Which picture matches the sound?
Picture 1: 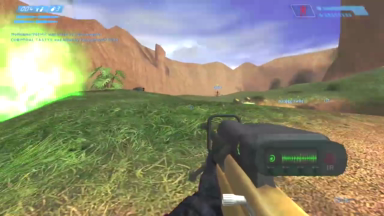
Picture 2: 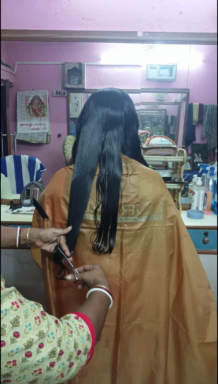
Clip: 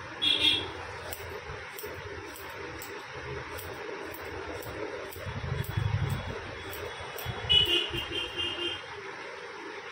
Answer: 2